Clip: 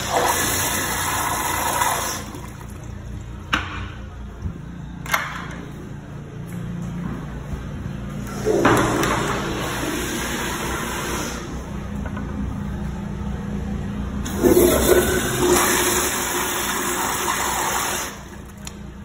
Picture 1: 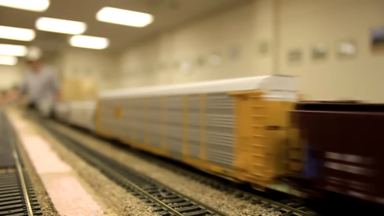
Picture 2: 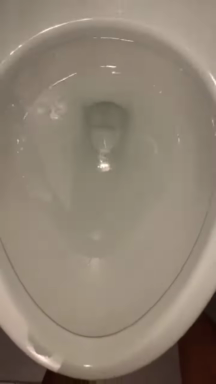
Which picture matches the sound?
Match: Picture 2